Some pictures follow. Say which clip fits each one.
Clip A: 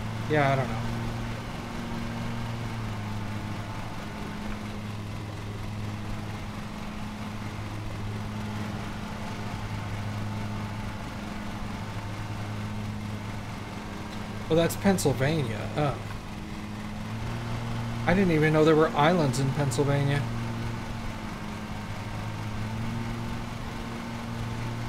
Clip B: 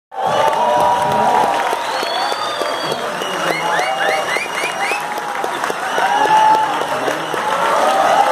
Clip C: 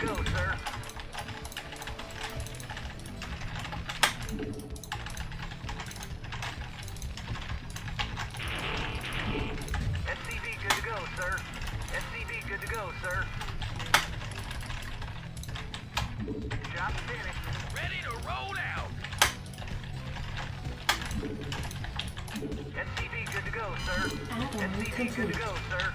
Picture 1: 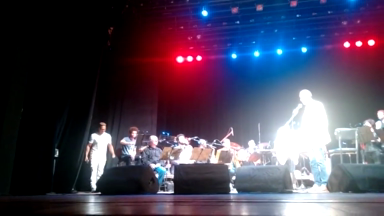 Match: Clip B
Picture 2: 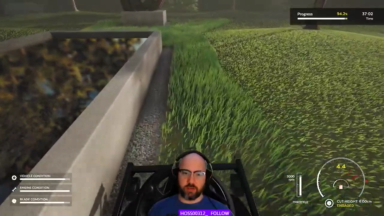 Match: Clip A